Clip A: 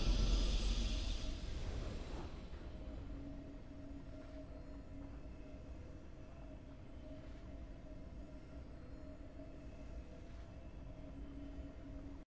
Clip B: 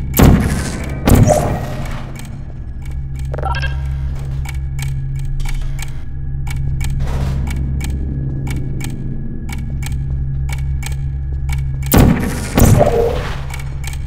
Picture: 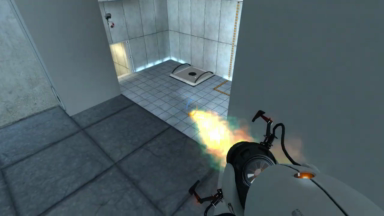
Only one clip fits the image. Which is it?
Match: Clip B